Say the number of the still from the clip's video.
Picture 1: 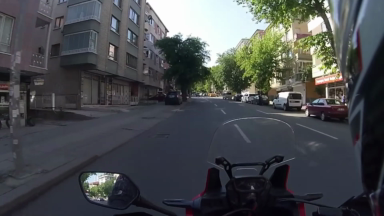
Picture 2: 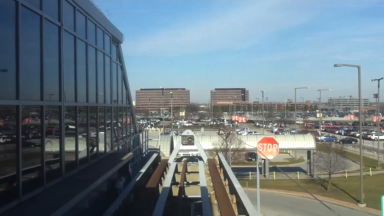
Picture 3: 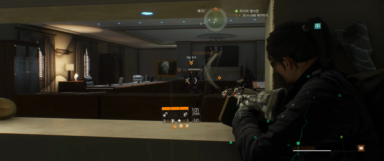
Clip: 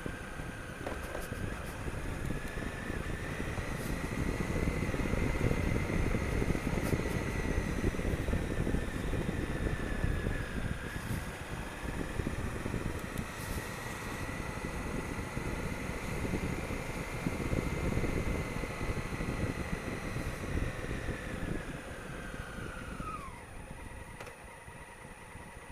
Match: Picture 1